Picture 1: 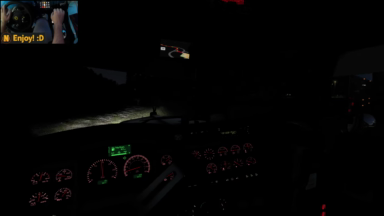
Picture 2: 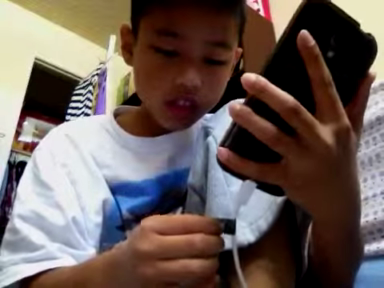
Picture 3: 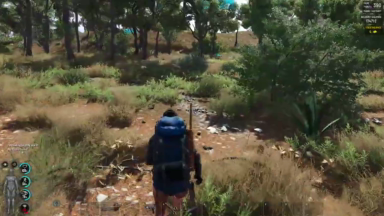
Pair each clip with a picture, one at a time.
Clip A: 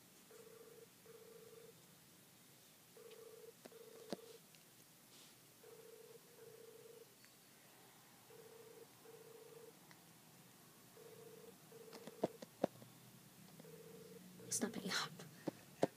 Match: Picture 2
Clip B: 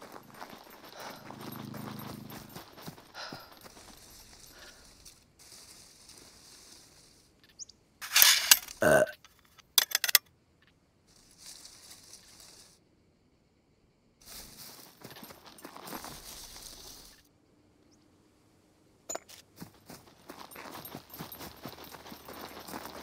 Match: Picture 3